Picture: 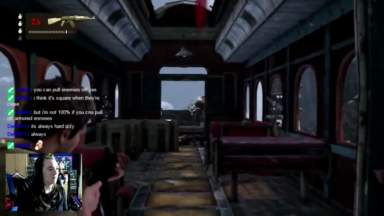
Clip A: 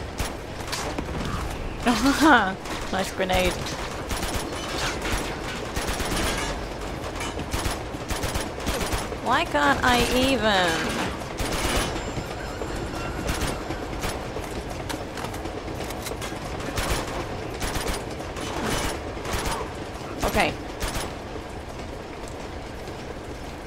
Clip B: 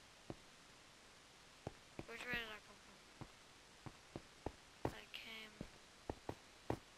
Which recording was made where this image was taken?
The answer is A